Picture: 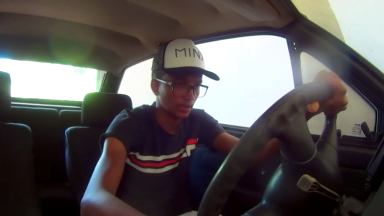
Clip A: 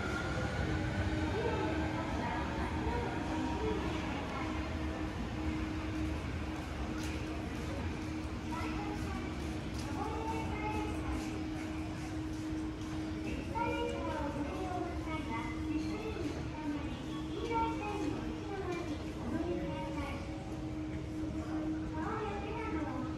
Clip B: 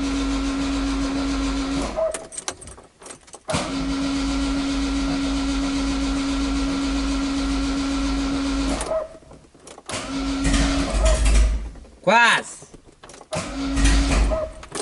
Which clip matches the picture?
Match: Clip B